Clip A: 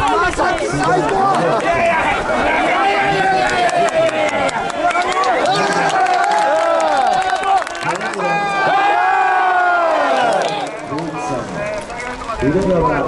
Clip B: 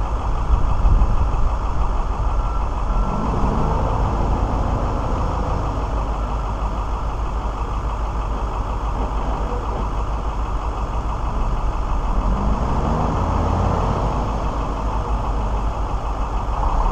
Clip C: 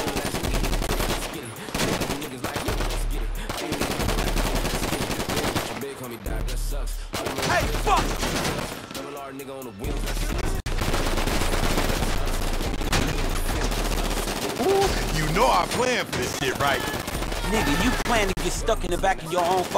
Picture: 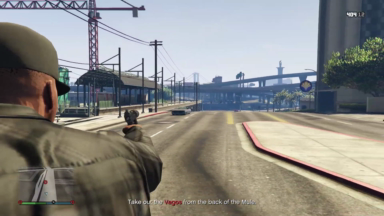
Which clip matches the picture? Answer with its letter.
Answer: C